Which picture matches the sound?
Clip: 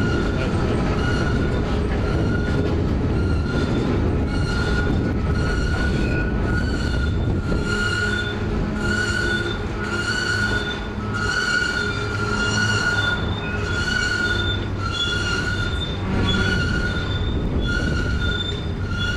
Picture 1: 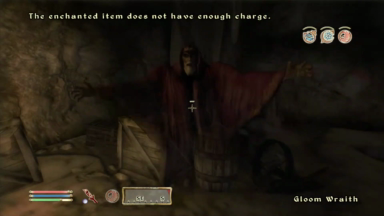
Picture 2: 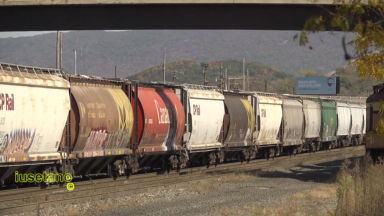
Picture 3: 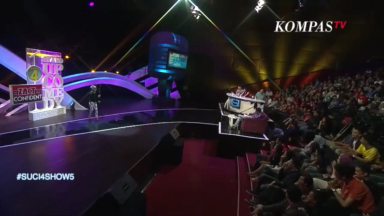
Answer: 2